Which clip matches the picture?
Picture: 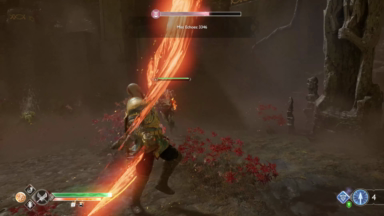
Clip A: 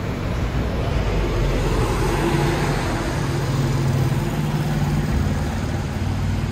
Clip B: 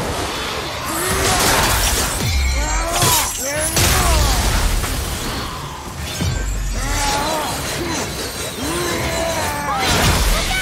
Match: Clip B